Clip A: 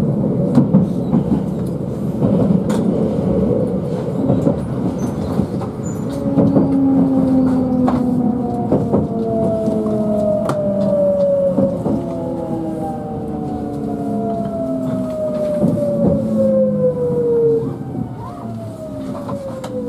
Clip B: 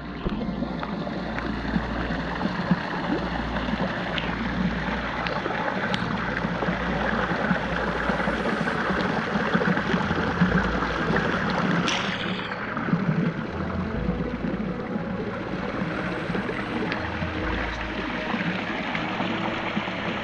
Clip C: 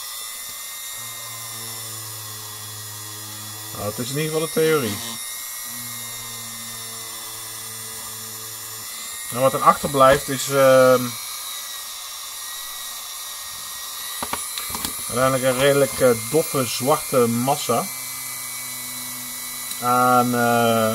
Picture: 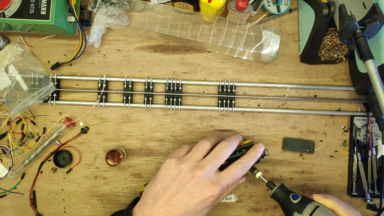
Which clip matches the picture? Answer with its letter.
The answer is C